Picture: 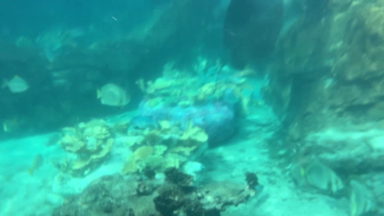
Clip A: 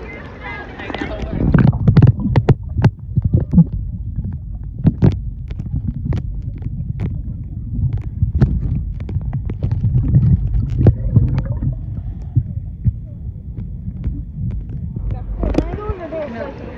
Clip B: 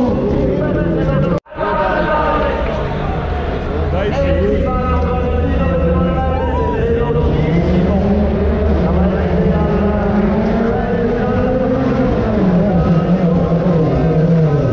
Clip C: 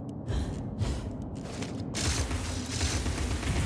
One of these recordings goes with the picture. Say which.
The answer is A